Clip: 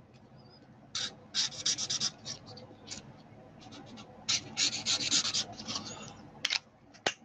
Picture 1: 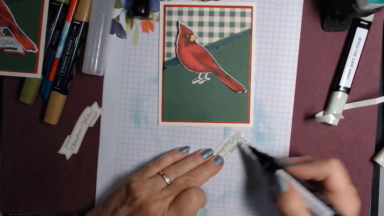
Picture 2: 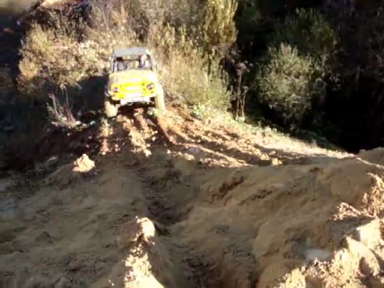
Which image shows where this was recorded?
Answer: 1